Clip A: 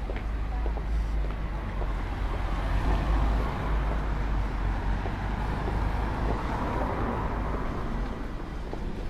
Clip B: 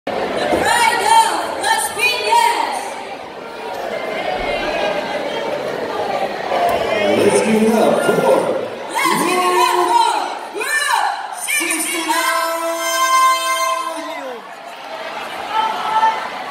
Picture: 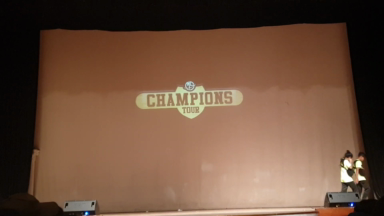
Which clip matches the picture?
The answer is B